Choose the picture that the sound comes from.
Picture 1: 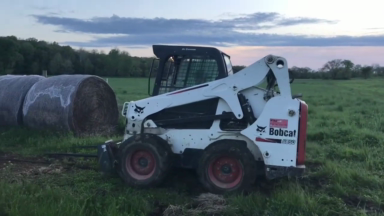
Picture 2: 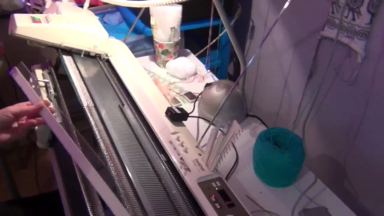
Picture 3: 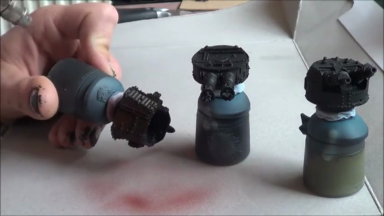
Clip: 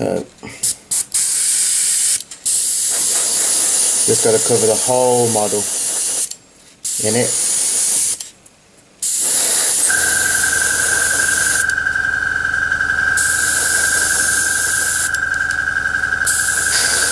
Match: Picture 3